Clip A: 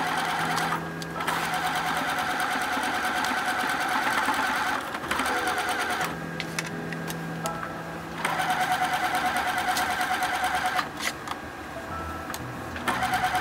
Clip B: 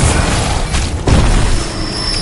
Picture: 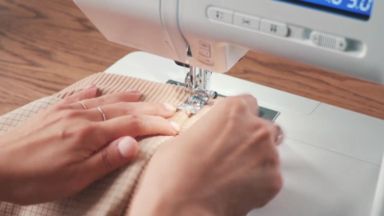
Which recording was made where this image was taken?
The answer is A